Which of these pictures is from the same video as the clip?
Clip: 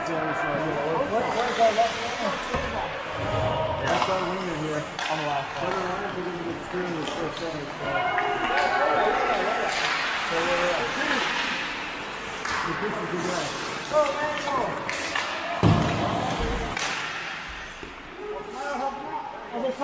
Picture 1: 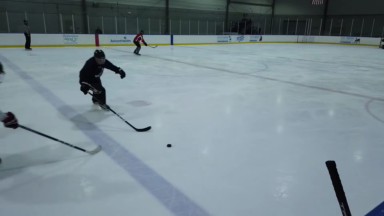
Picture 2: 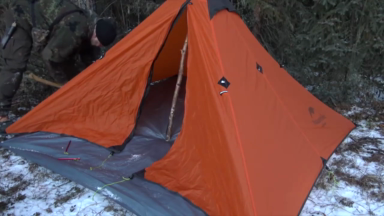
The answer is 1